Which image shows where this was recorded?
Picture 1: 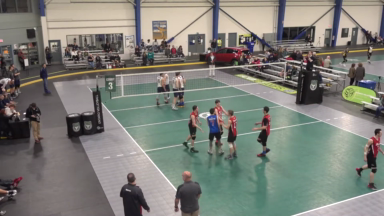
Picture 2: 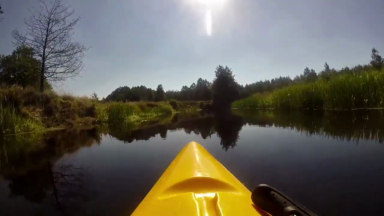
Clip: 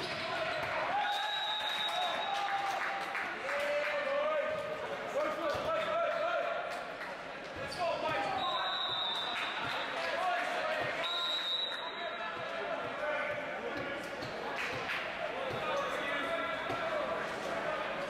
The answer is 1